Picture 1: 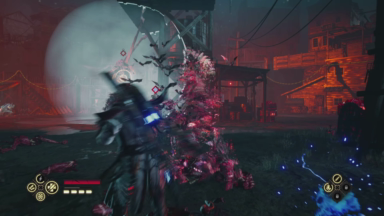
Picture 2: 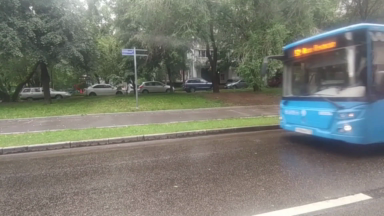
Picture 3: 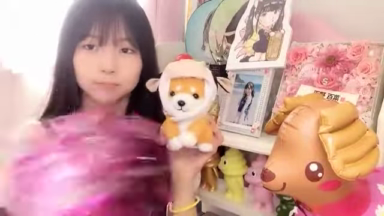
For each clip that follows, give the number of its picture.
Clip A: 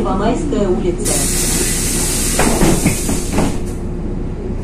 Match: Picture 2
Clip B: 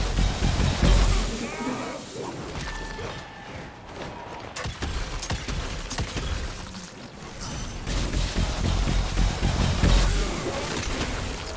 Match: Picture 1